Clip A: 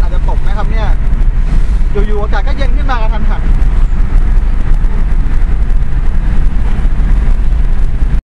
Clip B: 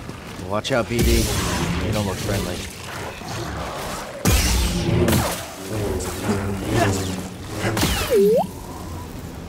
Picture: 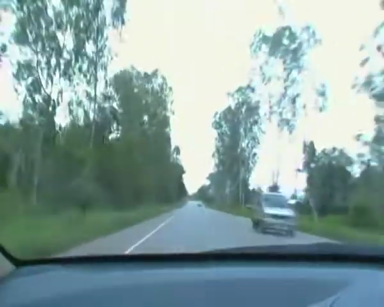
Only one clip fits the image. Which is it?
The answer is A